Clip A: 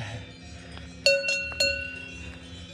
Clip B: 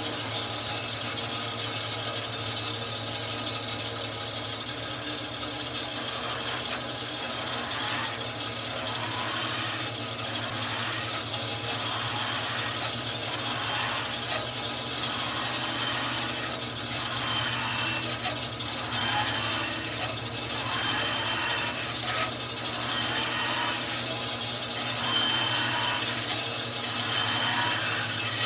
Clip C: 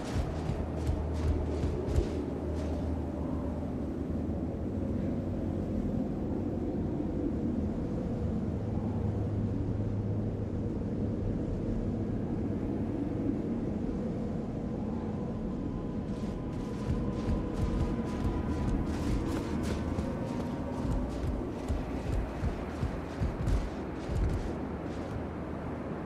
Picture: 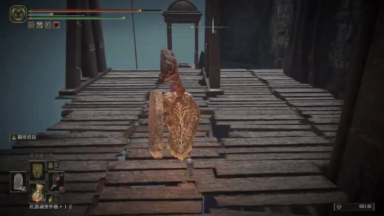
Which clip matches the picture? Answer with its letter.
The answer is C